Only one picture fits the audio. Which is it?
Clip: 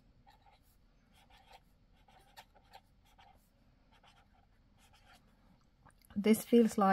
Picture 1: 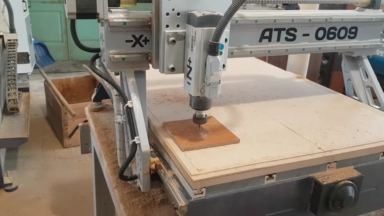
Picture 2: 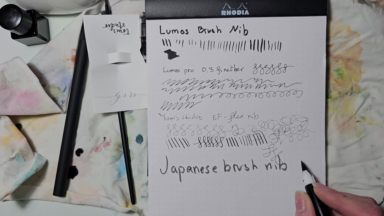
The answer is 2